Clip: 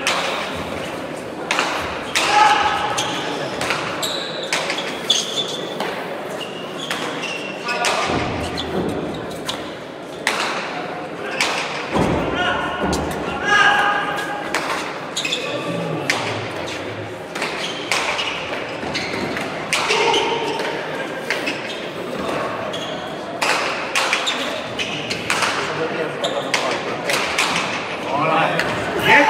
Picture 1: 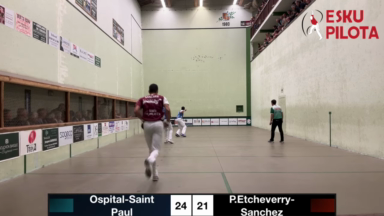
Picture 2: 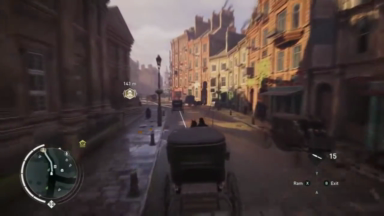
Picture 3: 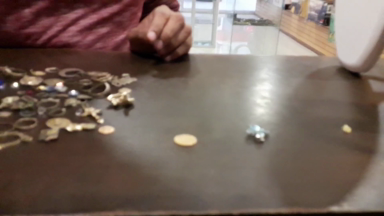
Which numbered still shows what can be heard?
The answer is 1